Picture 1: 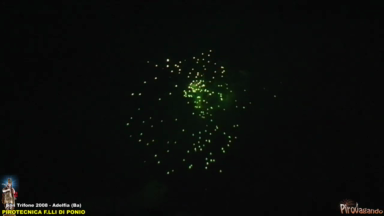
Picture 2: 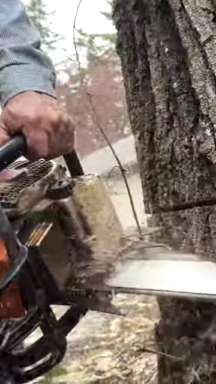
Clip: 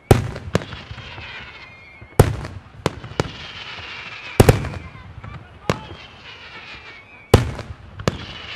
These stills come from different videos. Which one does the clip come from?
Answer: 1